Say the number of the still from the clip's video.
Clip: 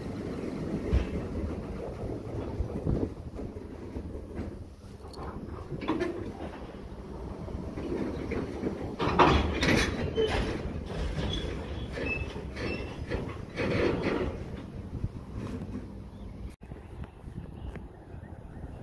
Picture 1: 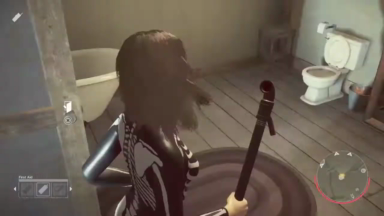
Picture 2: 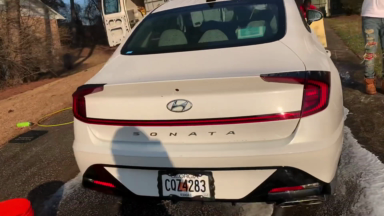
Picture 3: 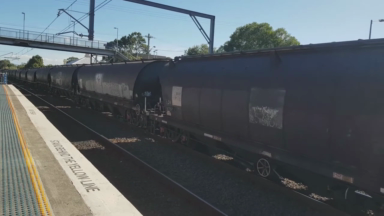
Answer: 3